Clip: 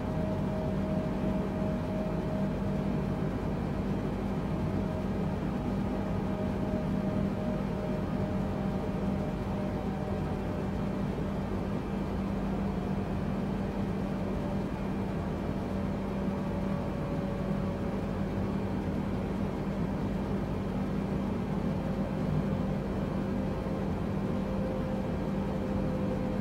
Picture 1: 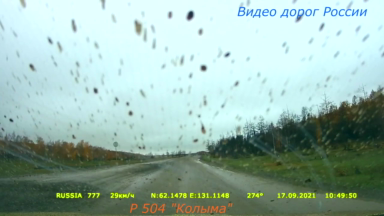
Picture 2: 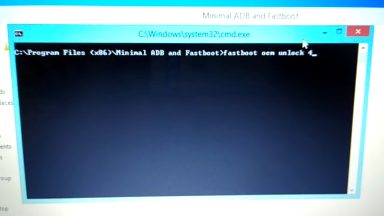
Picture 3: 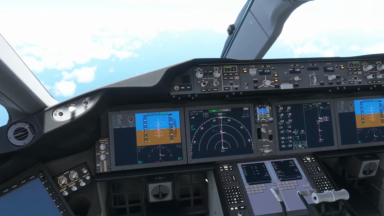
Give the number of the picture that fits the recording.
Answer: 3